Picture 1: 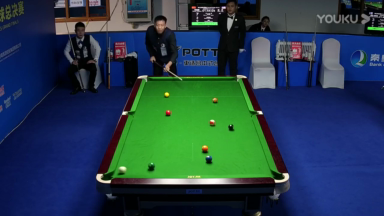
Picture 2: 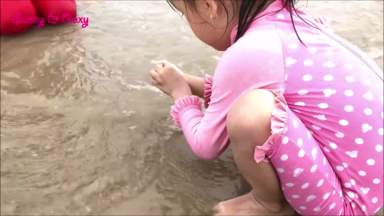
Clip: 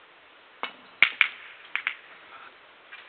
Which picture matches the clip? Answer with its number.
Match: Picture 1